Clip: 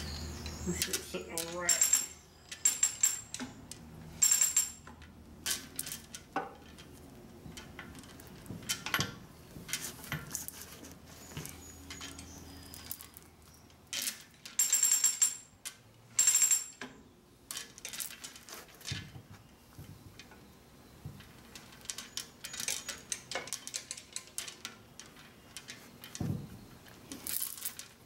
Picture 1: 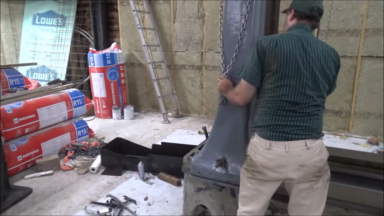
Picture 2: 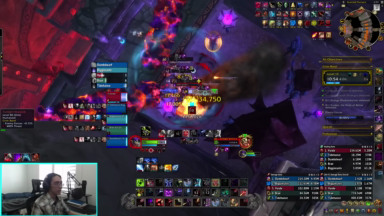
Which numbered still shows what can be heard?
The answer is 1